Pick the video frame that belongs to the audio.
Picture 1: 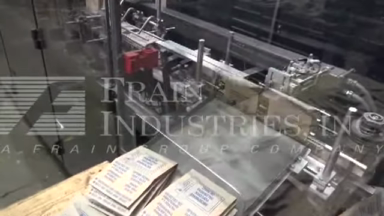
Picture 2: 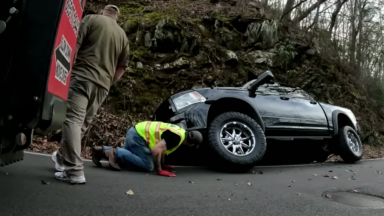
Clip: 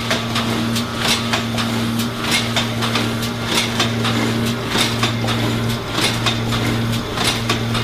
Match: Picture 1